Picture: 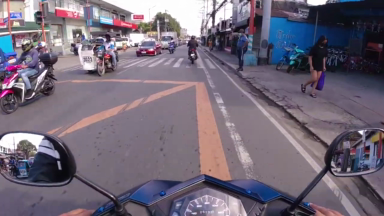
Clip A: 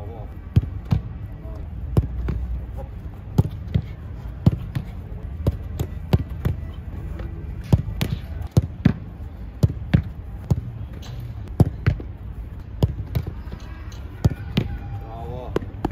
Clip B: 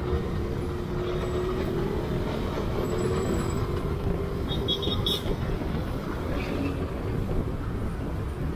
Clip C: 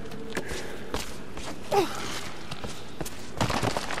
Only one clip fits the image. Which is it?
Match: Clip B